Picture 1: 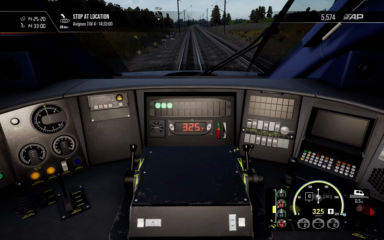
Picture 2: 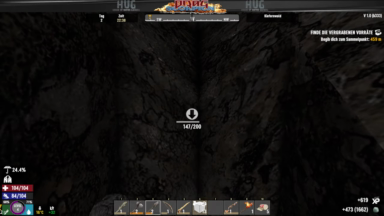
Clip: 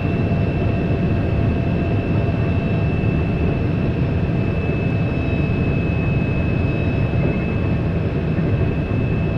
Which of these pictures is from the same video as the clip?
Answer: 1